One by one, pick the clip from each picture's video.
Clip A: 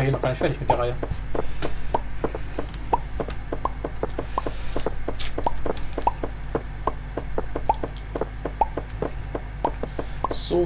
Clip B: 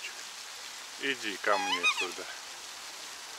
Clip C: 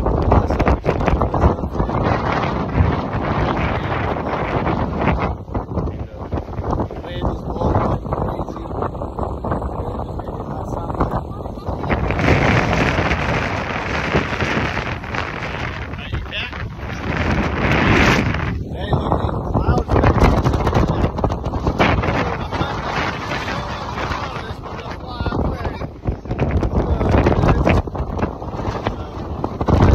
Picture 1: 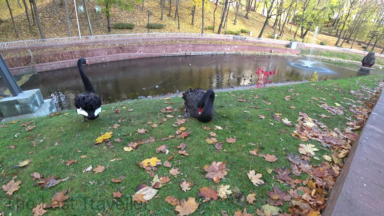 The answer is B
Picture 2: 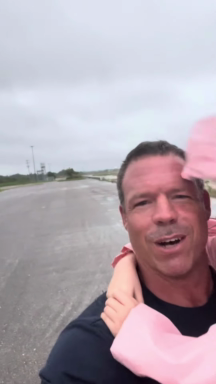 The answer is C